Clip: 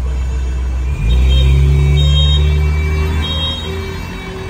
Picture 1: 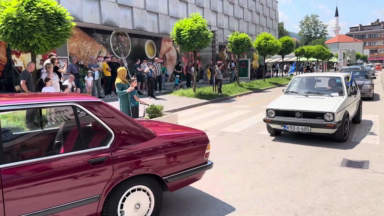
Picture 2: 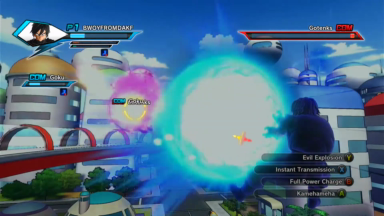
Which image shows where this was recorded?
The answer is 1